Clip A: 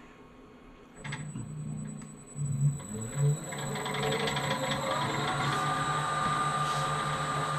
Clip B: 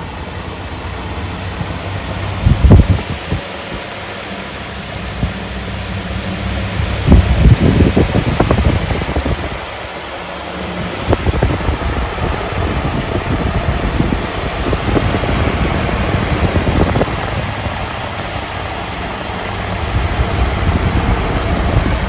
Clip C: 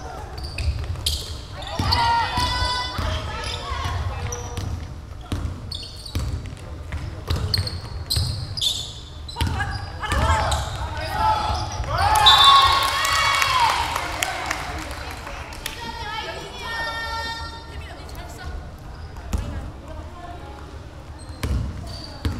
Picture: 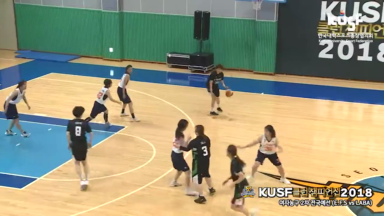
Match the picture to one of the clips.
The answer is C